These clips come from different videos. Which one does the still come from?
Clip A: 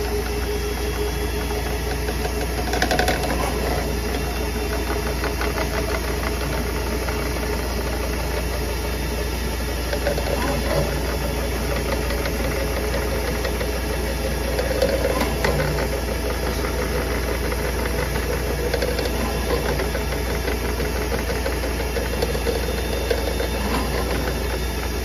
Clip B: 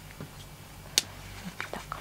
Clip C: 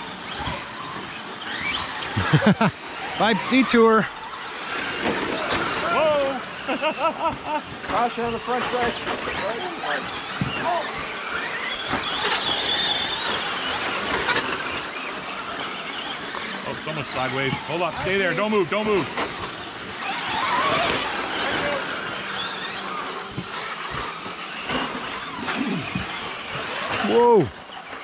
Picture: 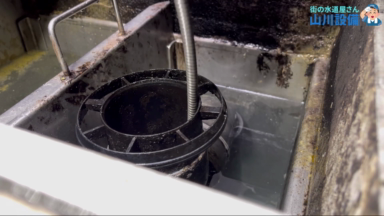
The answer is A